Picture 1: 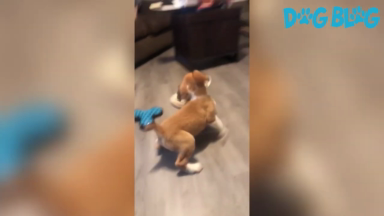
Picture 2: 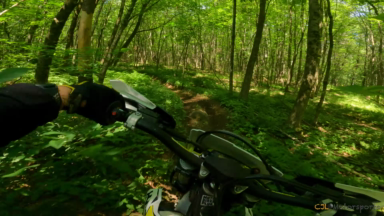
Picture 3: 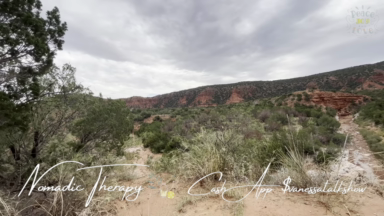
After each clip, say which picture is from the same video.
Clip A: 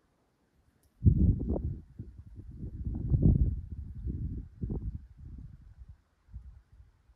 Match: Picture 3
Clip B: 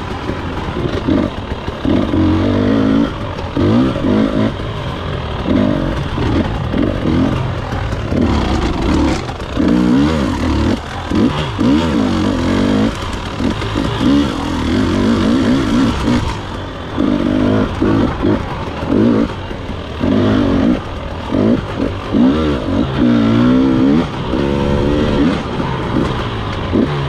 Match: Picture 2